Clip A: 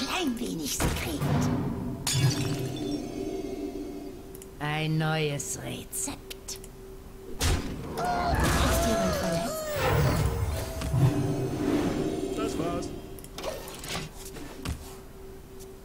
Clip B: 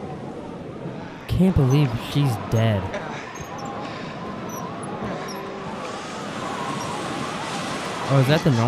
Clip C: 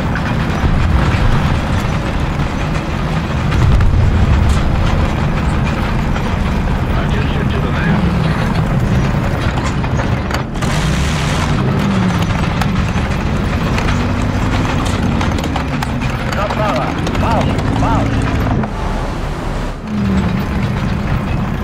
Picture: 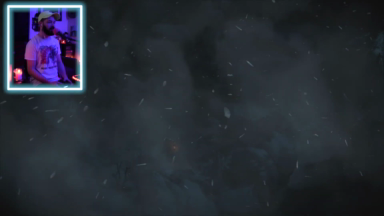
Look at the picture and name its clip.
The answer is B